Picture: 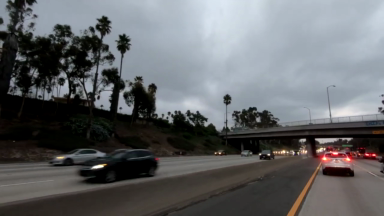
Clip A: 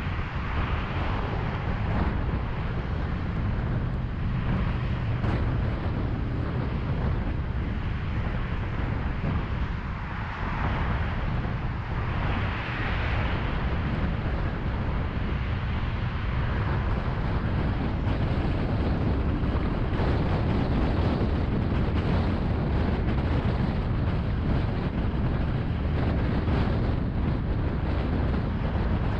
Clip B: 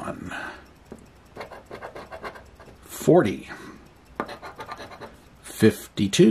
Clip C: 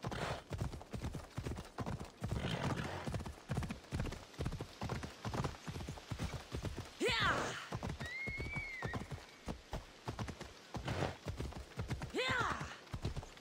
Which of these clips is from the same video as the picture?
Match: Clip A